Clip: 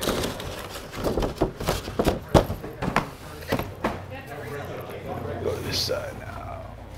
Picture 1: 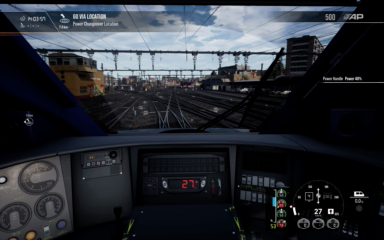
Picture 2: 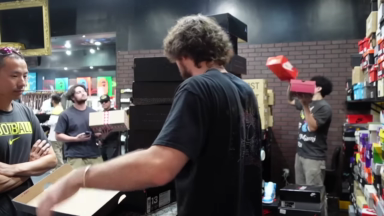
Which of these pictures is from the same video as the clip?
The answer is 2